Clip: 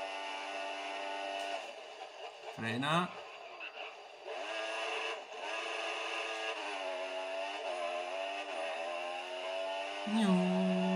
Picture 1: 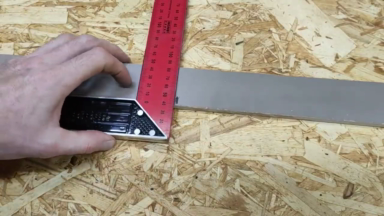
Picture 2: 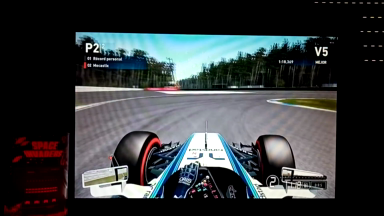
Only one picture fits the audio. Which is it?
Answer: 2